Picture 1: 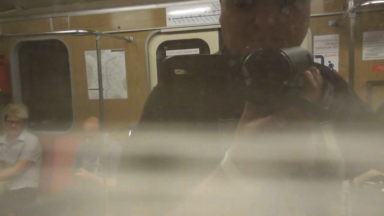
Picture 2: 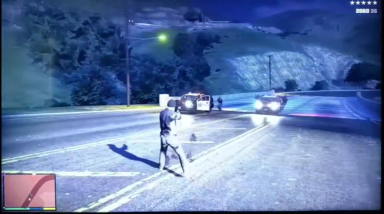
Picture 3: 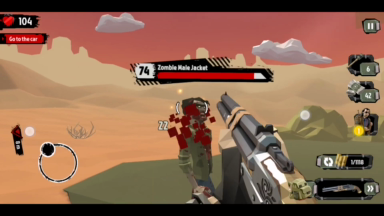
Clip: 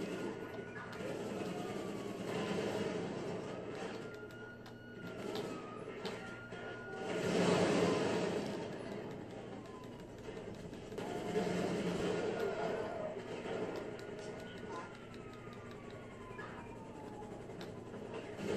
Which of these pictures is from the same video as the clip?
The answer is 2